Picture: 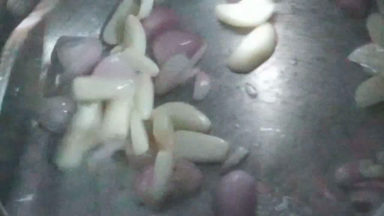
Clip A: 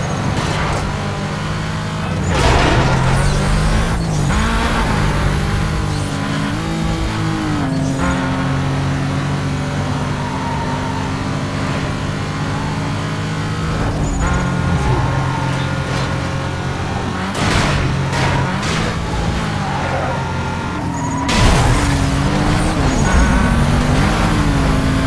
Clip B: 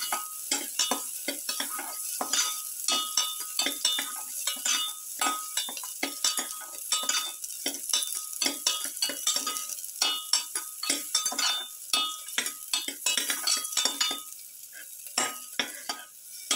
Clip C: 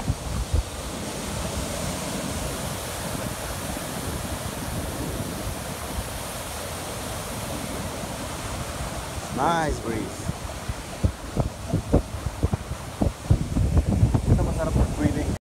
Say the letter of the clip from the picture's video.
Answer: B